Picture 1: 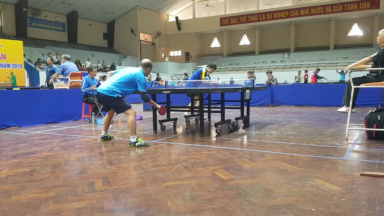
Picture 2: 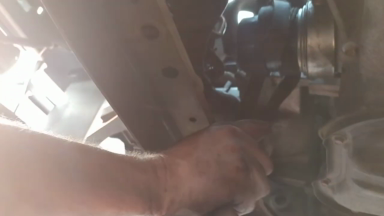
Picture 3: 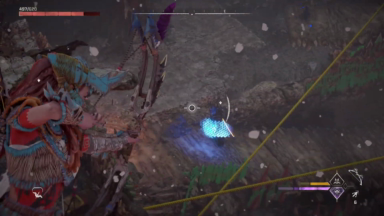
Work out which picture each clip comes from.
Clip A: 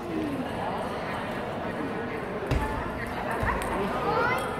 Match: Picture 1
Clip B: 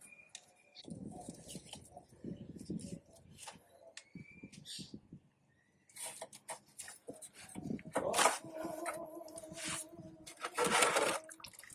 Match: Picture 2